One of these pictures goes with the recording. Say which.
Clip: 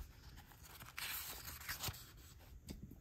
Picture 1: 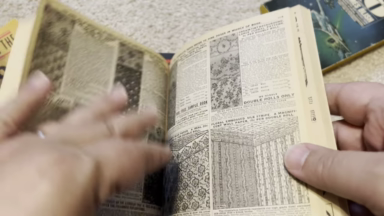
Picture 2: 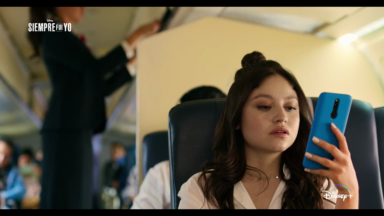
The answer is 1